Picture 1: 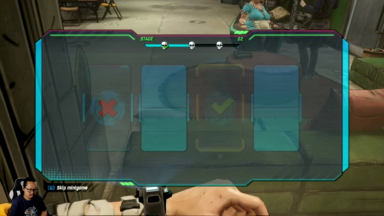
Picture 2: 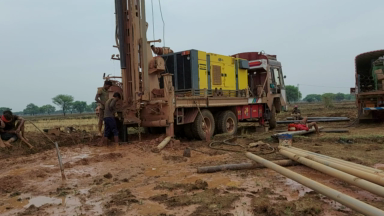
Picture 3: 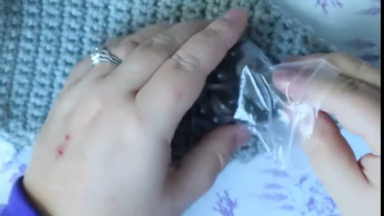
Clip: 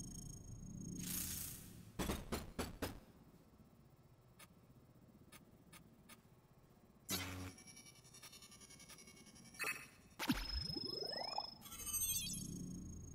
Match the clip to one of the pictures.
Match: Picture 1